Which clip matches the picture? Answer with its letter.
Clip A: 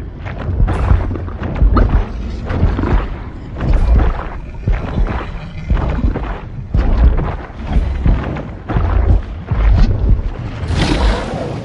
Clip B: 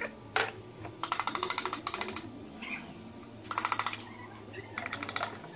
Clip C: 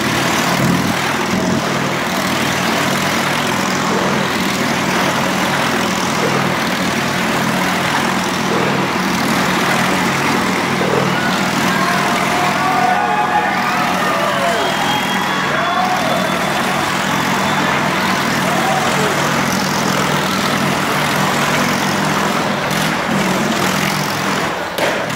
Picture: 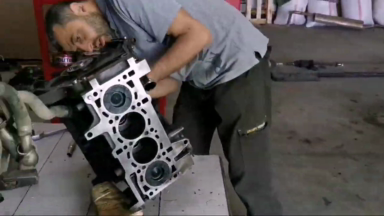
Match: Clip B